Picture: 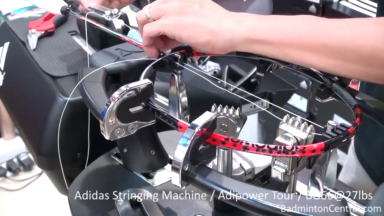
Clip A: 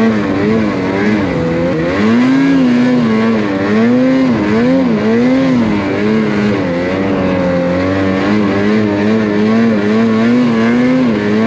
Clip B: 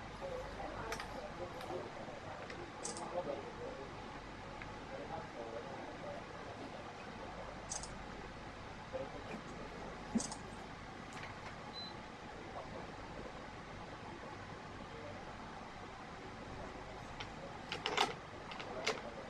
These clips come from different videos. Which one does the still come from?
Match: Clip B